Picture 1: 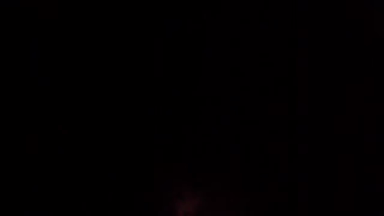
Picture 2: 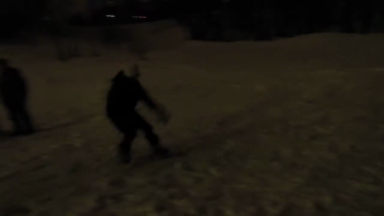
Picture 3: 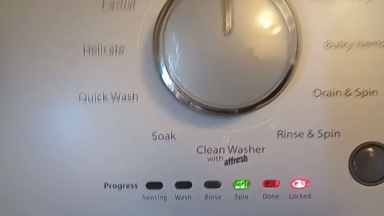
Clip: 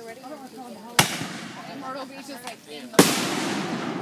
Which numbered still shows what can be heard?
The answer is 1